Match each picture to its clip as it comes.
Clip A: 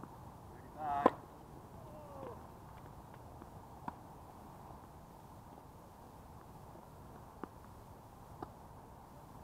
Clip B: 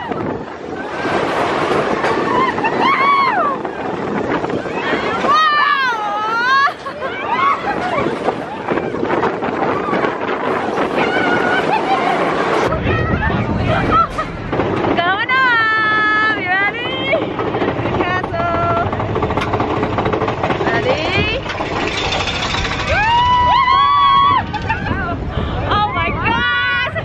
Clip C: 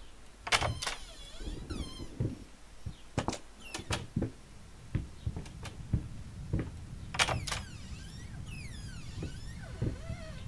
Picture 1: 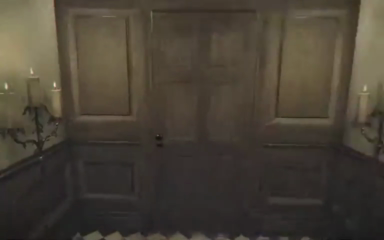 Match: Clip C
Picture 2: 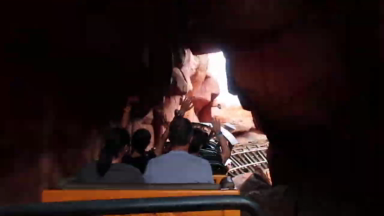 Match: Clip B